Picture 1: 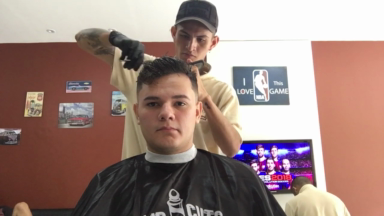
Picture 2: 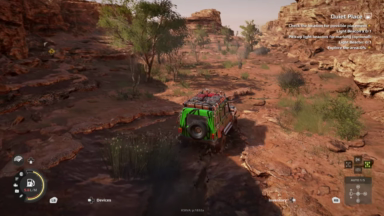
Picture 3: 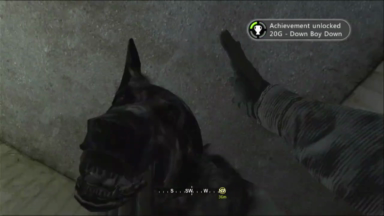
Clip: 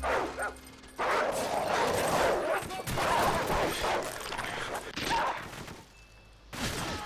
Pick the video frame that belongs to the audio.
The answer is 3